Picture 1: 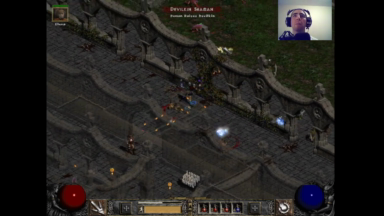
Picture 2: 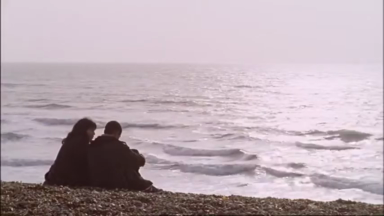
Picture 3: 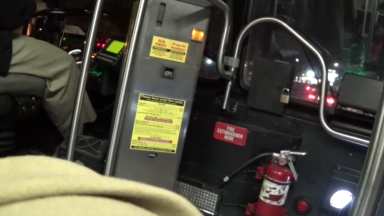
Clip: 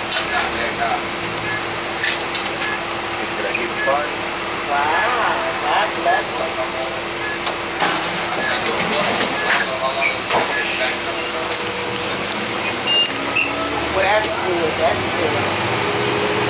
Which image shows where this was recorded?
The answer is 3